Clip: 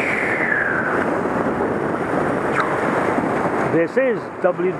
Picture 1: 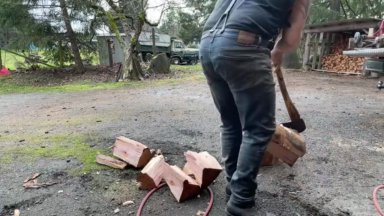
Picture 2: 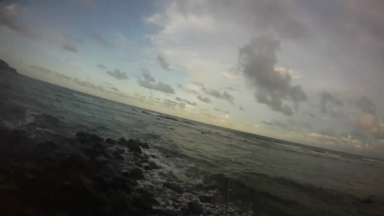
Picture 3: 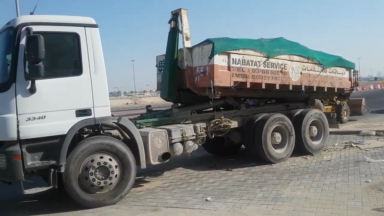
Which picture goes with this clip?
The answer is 2